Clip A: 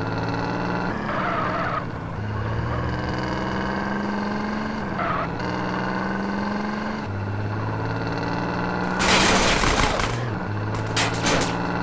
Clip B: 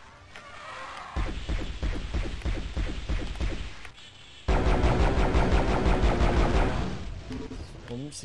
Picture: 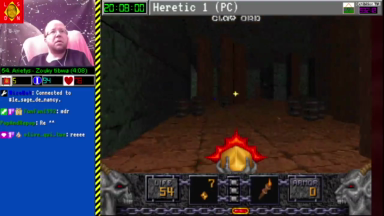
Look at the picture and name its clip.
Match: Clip B